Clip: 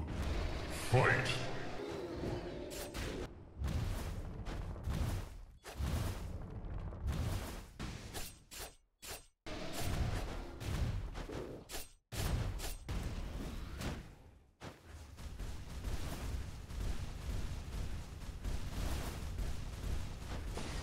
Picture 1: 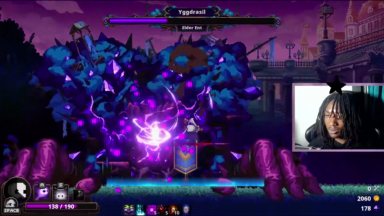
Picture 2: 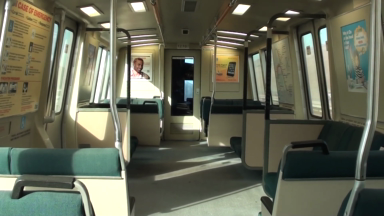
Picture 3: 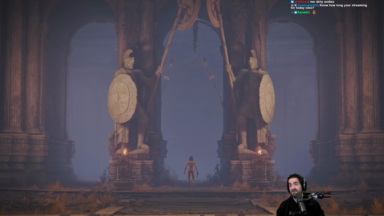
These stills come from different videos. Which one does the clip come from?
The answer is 1